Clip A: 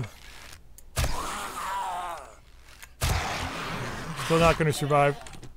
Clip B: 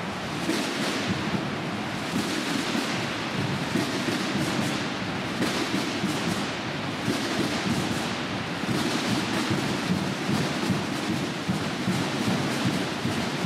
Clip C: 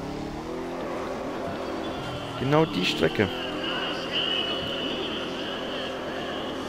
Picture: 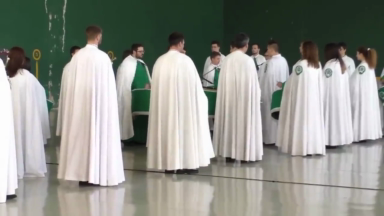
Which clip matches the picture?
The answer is B